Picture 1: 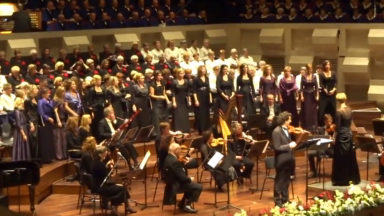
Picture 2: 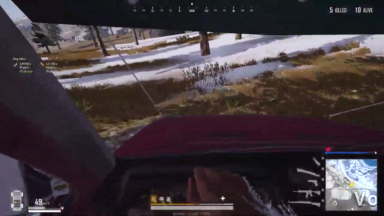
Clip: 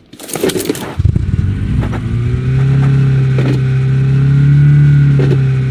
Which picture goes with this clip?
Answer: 2